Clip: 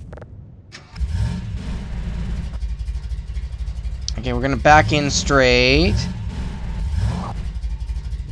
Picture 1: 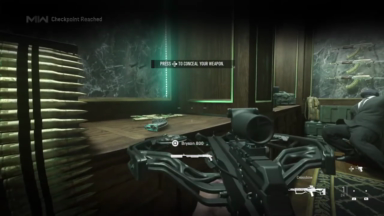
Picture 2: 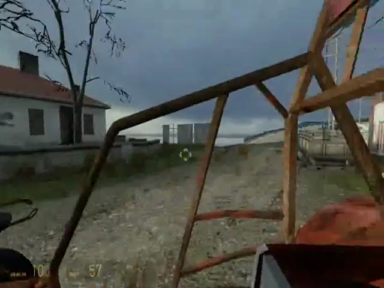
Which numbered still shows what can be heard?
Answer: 2